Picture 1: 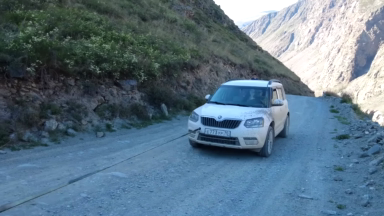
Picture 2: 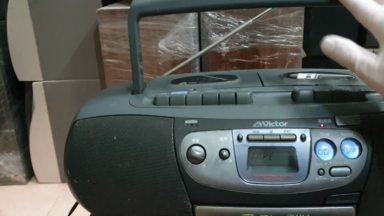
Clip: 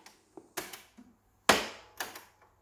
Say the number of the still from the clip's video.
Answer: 2